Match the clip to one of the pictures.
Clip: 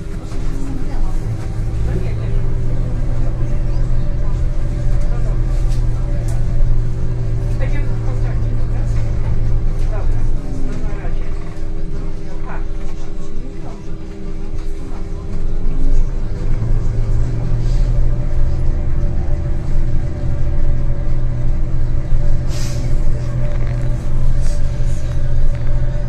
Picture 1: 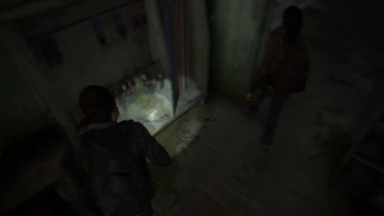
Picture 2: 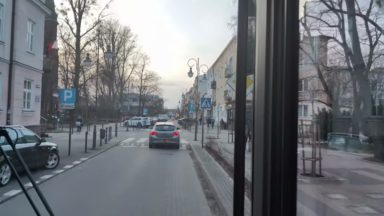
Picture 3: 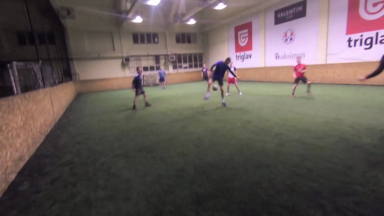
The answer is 2